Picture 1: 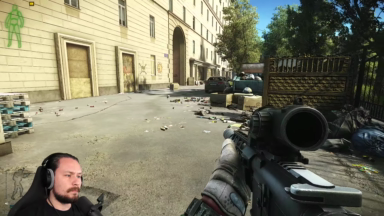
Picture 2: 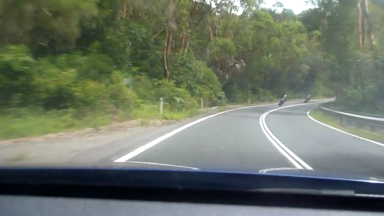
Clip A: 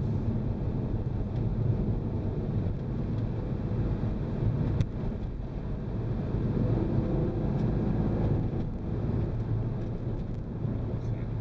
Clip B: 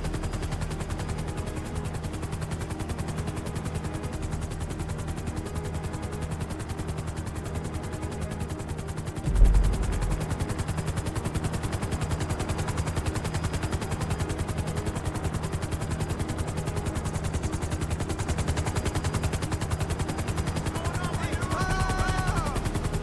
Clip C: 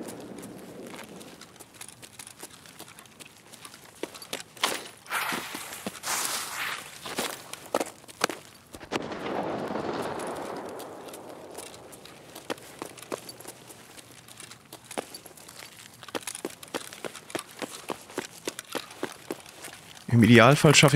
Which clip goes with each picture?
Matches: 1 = C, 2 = A